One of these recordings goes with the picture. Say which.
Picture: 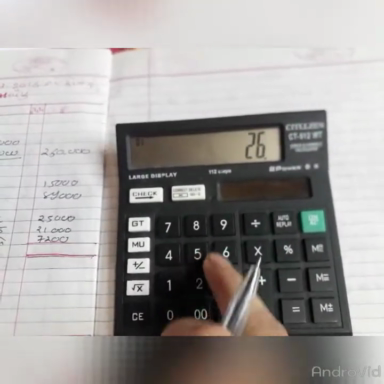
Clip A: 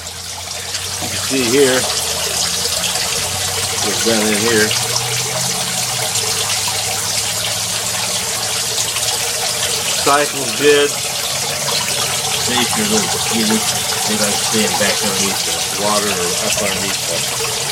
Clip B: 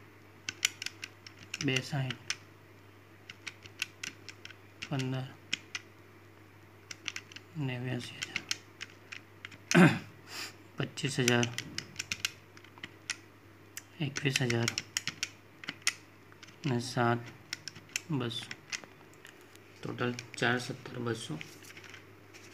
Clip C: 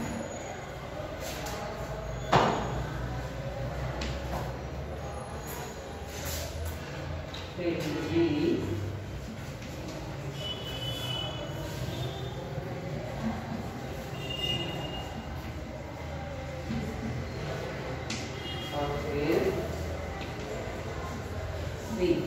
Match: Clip B